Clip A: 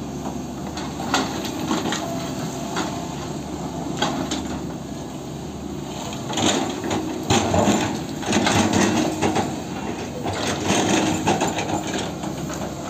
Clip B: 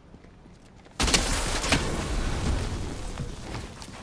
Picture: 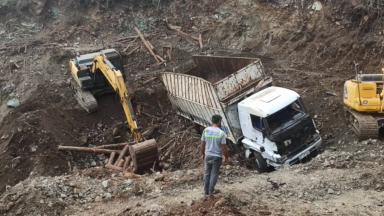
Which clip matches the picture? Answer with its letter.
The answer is A